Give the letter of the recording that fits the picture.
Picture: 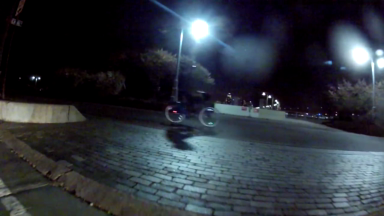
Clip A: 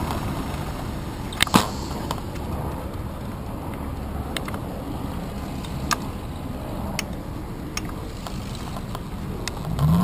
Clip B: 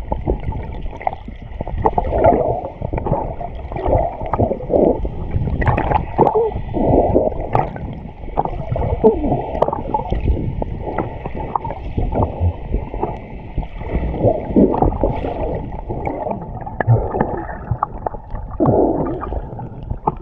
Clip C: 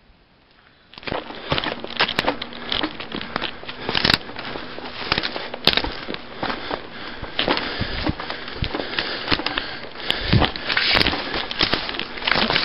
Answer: A